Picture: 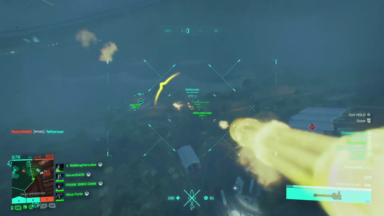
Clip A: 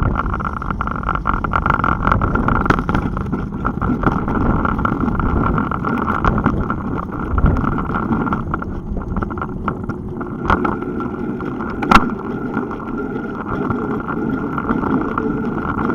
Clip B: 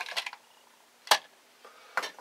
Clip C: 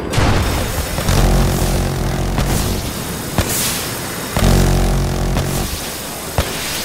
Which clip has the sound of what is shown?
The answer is C